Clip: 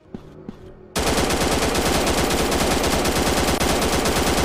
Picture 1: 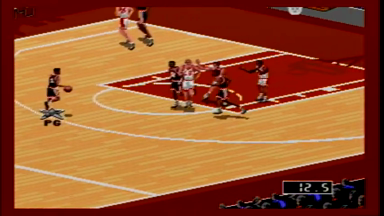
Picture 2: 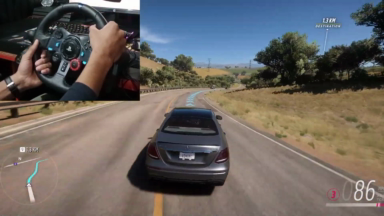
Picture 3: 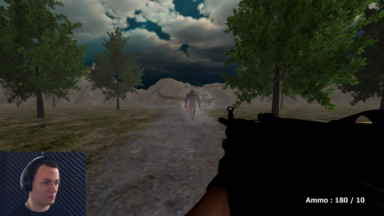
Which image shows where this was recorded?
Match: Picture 3